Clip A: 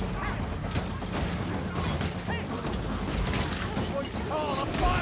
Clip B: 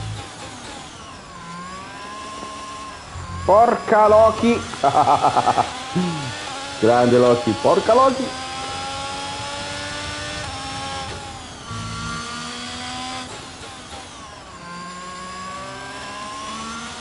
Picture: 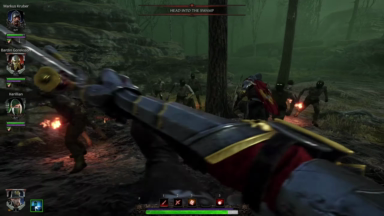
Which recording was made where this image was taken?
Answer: A